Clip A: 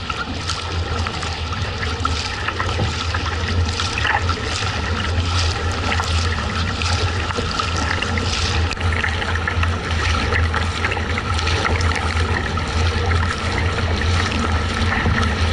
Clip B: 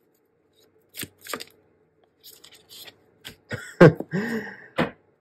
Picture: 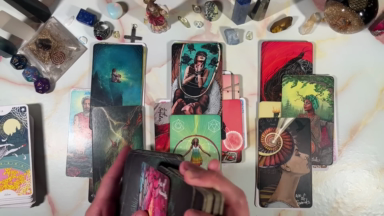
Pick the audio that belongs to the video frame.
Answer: B